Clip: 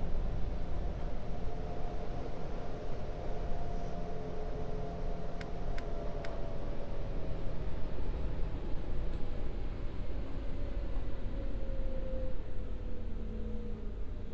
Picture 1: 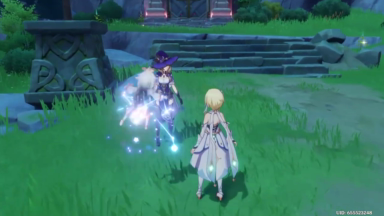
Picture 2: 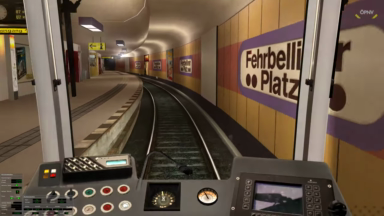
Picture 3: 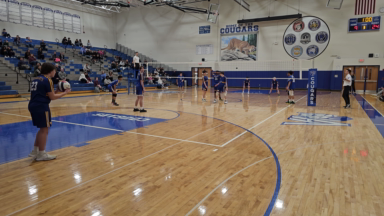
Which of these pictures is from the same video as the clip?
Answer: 2